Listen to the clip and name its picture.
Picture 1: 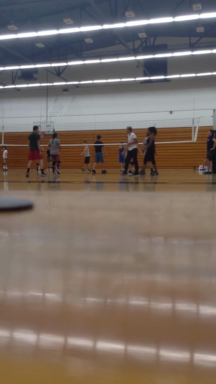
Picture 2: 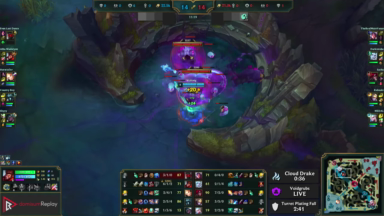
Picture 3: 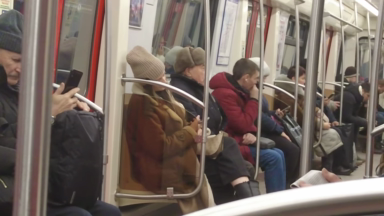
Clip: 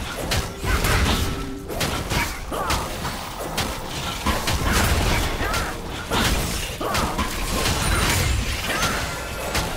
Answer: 2